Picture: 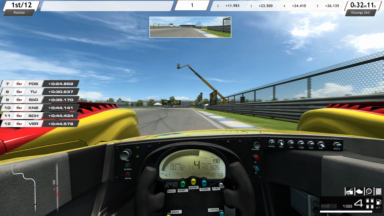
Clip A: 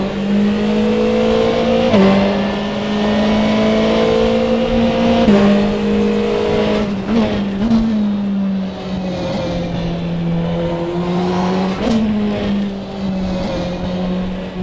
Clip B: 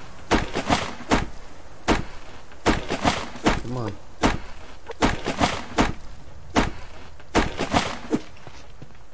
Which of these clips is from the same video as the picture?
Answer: A